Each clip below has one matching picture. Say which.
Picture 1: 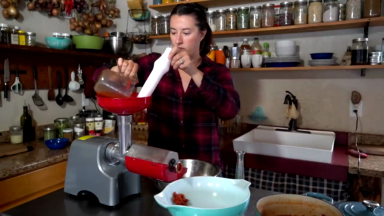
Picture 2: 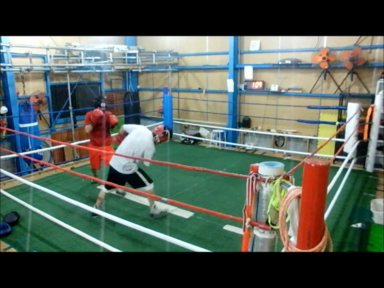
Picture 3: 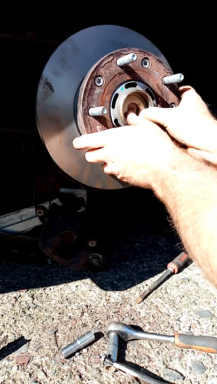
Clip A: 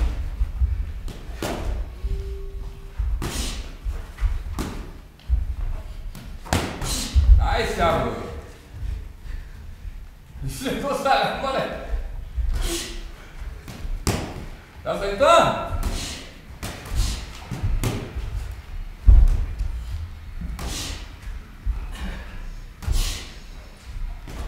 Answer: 2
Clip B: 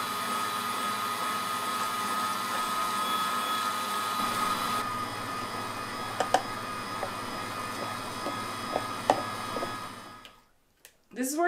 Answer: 1